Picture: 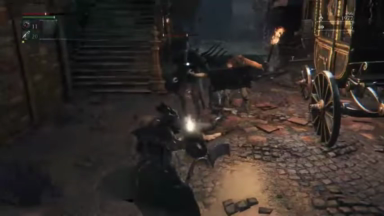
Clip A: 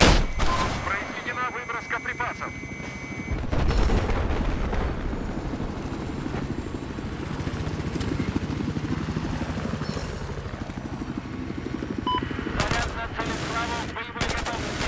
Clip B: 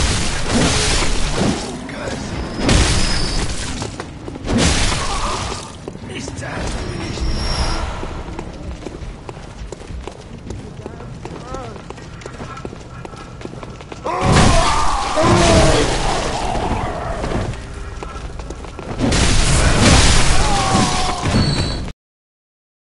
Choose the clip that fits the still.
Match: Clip B